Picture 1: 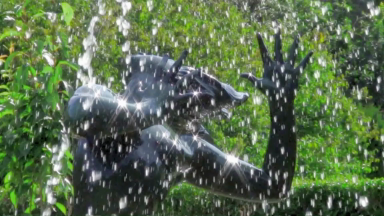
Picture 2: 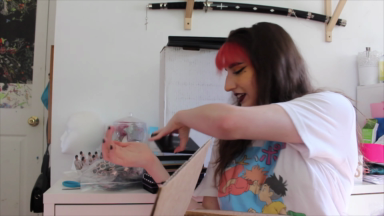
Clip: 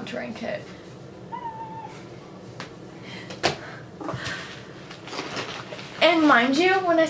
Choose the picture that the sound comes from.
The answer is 2